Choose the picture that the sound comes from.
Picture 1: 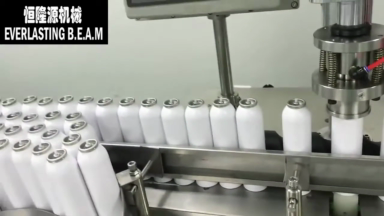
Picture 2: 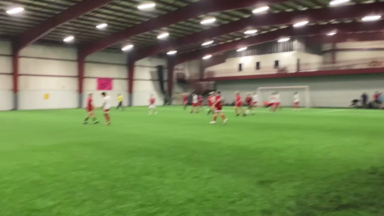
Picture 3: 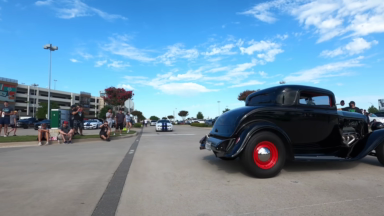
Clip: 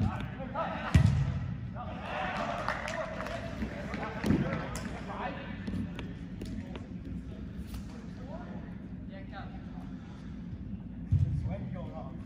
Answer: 2